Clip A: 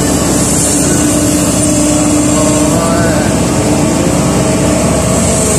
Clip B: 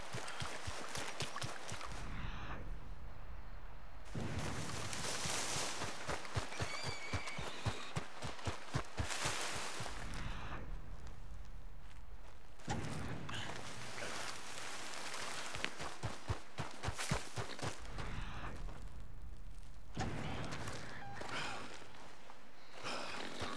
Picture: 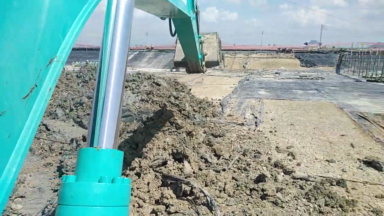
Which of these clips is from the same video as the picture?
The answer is A